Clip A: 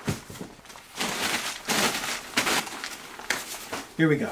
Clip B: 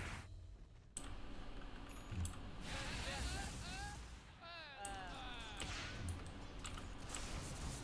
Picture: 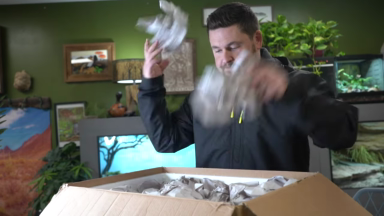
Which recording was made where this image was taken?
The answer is A